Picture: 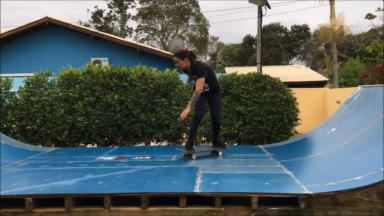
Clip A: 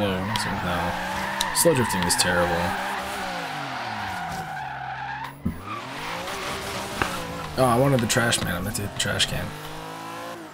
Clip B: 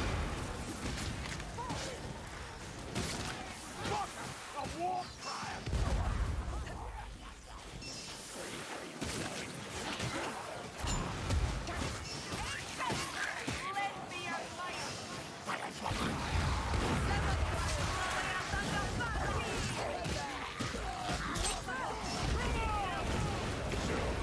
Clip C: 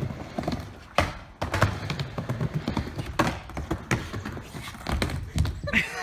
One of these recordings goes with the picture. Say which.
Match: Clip C